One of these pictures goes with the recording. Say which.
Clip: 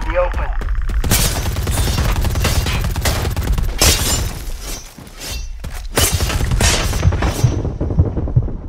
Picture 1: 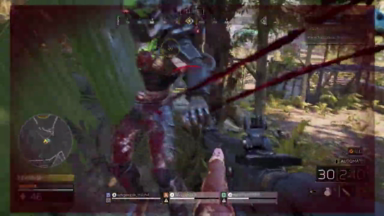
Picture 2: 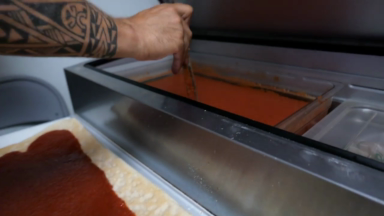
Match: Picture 1